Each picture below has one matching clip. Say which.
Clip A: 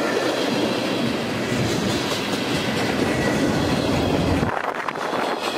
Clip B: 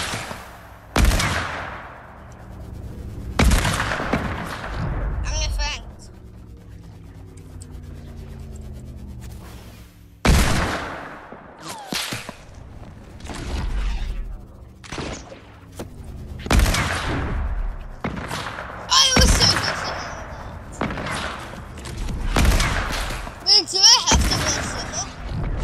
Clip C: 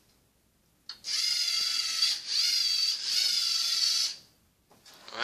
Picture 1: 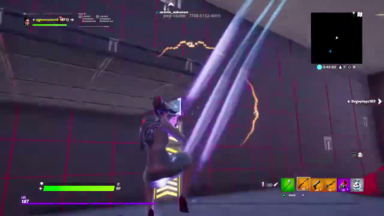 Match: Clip B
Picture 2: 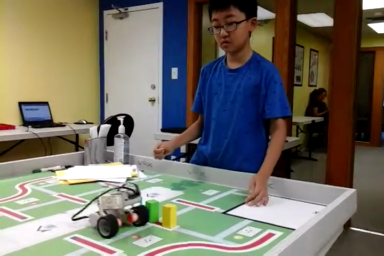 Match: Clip C